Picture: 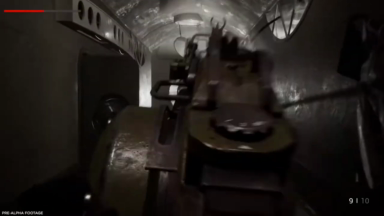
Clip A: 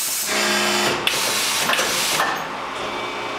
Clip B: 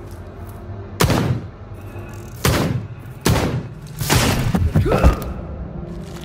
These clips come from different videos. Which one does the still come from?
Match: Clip B